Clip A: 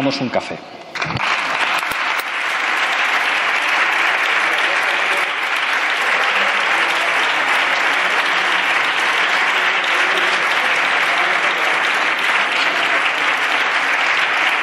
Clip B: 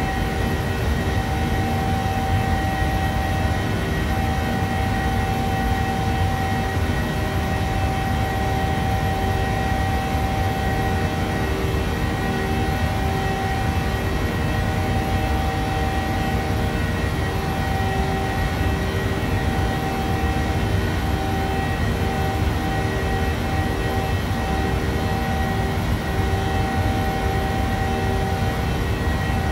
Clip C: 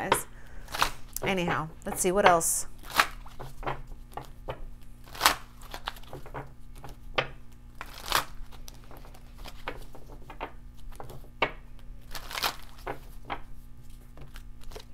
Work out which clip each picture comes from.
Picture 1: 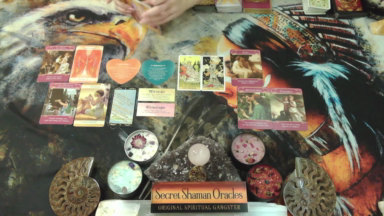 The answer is C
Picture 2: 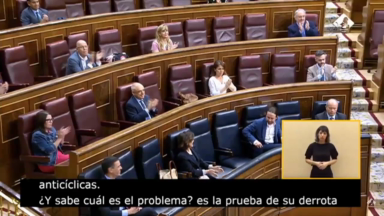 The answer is A